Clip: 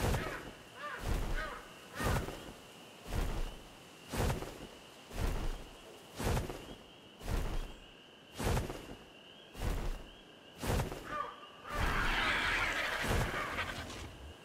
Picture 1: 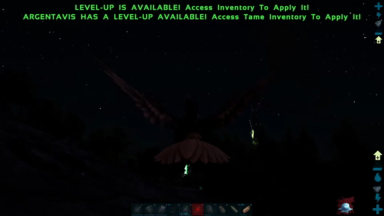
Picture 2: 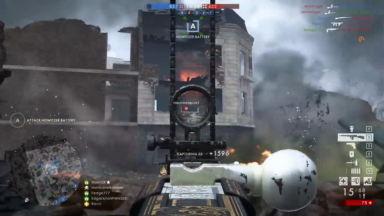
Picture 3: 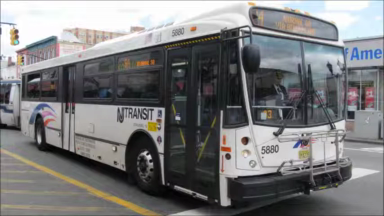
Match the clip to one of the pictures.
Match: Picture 1